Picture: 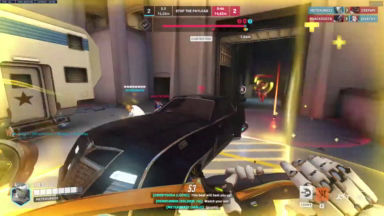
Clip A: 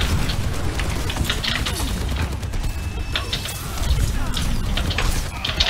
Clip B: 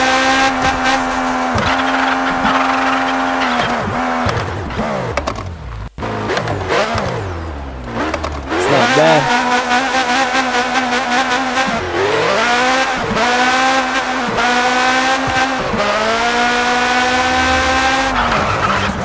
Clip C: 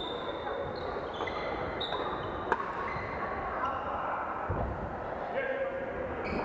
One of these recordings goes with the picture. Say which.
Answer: A